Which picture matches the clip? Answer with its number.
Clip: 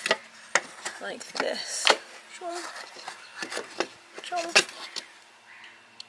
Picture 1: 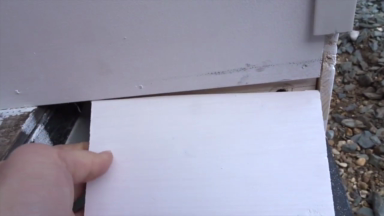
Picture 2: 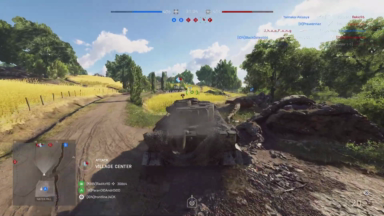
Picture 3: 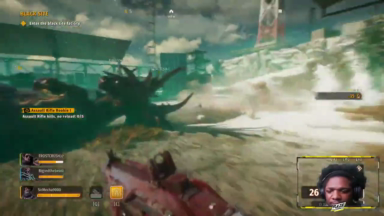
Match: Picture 1